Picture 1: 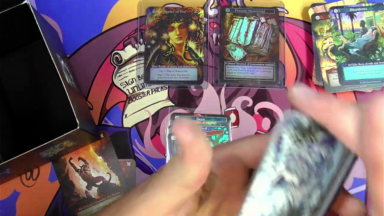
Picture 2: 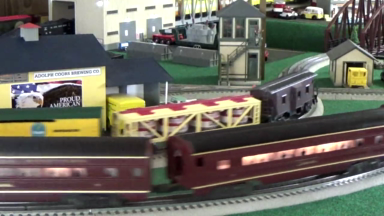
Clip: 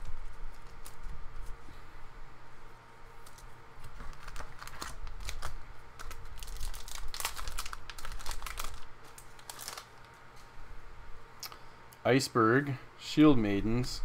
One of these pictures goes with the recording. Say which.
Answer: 1